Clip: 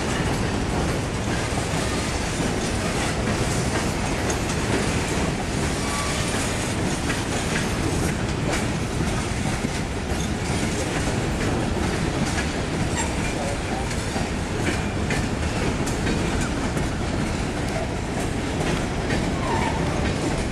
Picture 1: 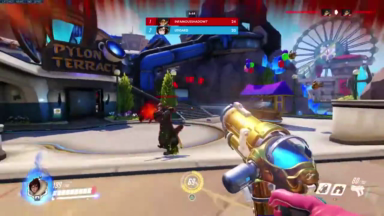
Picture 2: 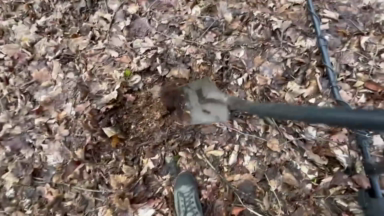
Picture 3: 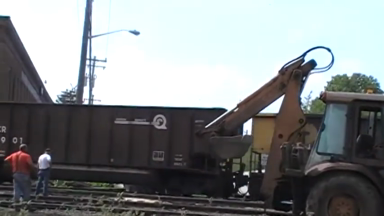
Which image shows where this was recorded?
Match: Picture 3